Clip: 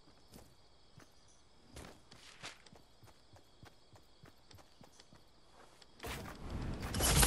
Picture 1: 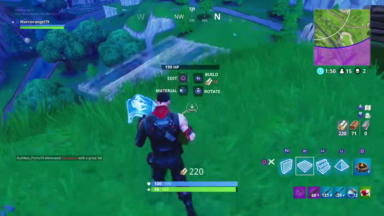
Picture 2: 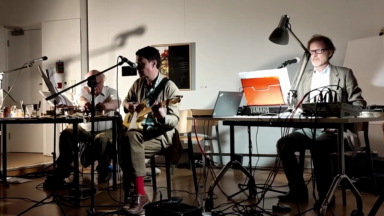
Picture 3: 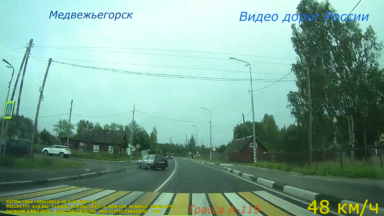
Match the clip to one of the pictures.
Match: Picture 1